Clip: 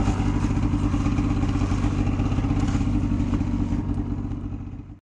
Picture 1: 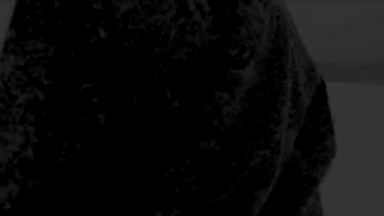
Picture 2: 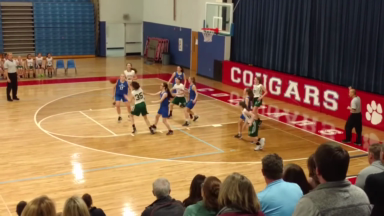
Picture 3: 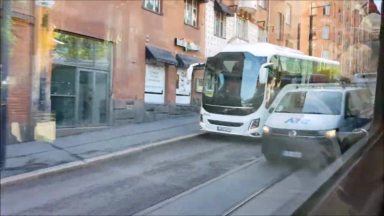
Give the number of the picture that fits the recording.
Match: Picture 1